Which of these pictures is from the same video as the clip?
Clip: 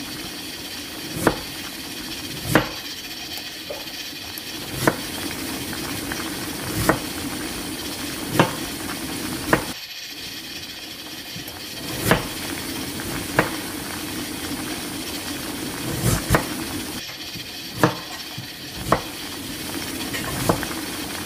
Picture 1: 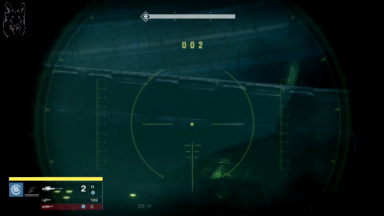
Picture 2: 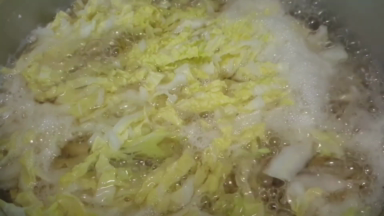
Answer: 2